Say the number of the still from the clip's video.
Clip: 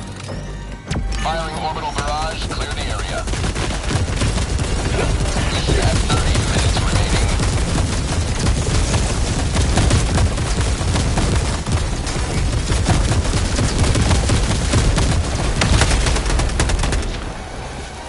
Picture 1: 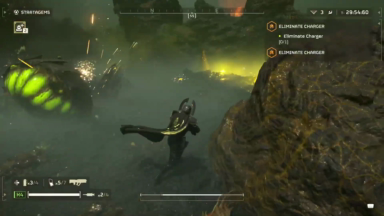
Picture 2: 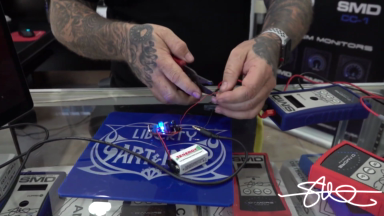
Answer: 1